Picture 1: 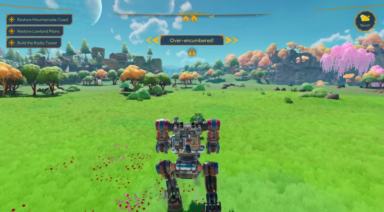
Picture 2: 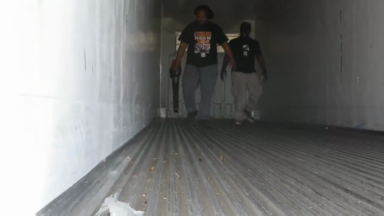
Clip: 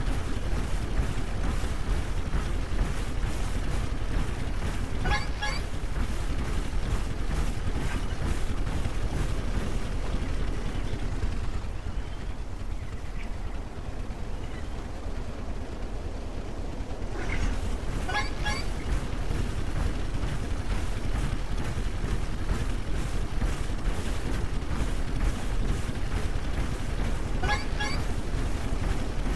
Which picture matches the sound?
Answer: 1